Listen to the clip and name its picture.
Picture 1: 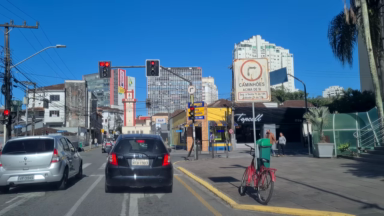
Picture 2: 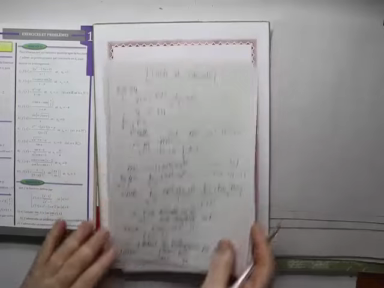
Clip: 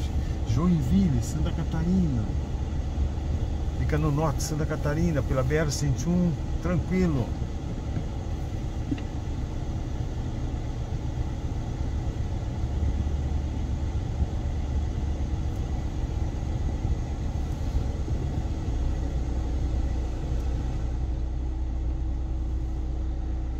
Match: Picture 1